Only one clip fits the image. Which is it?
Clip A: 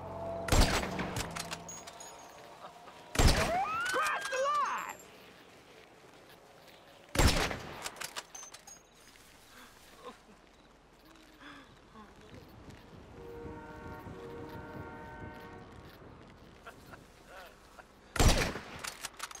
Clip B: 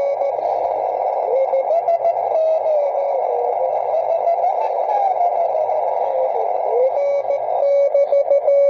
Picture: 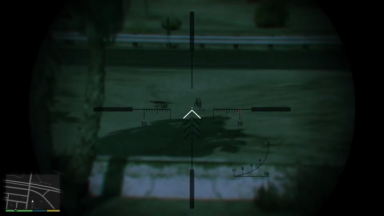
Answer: A